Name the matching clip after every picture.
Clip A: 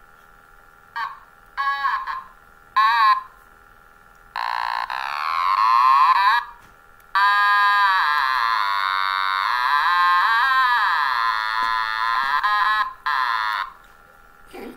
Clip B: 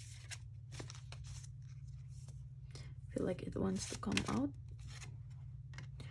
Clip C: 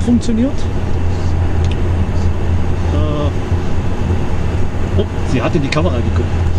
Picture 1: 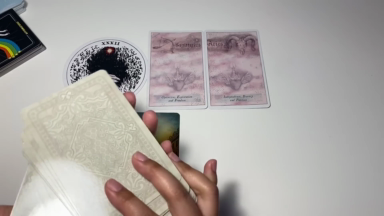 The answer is B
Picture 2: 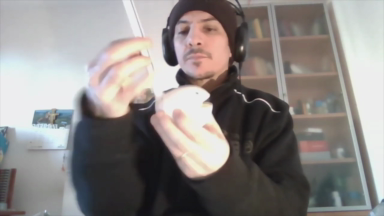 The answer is A